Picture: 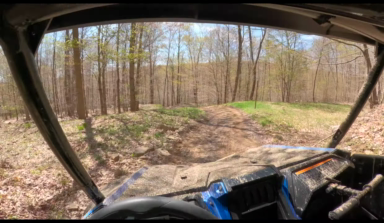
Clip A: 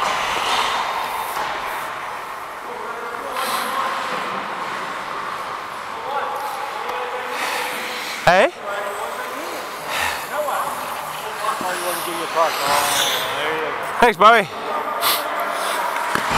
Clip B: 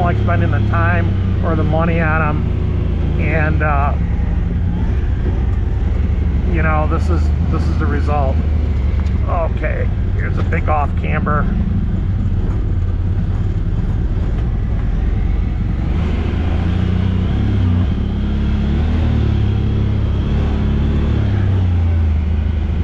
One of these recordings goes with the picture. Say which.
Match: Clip B